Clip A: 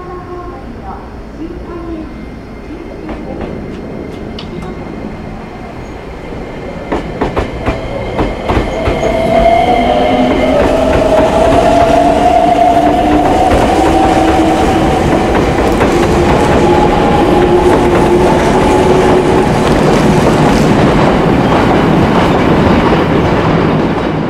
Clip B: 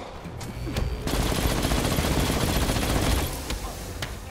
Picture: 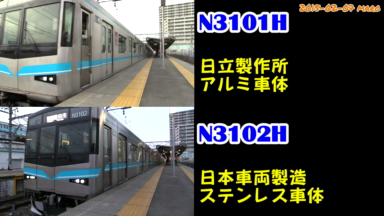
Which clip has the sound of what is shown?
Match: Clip A